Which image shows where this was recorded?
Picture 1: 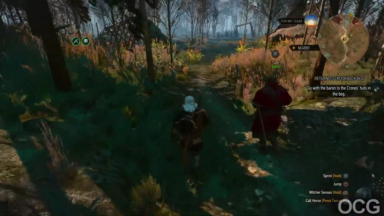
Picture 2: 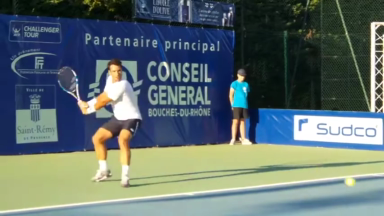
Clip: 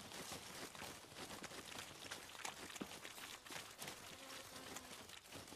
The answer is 1